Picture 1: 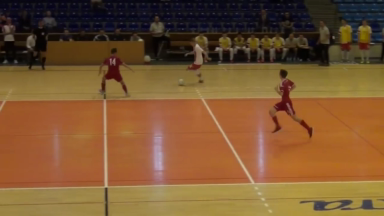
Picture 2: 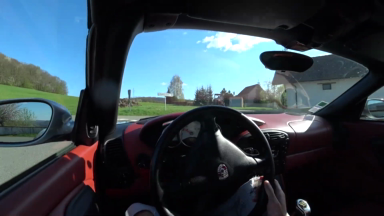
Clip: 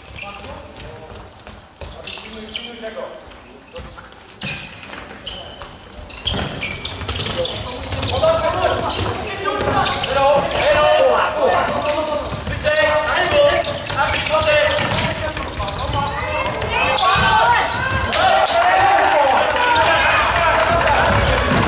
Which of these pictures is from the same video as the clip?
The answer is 1